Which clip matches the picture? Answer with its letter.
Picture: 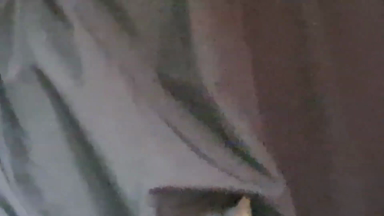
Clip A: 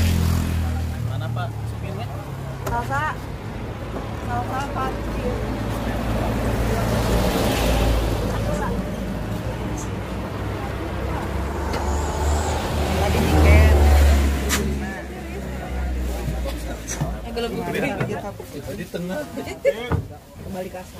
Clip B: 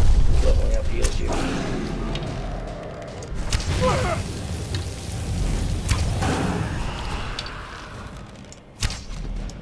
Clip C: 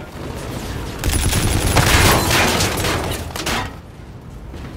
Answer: A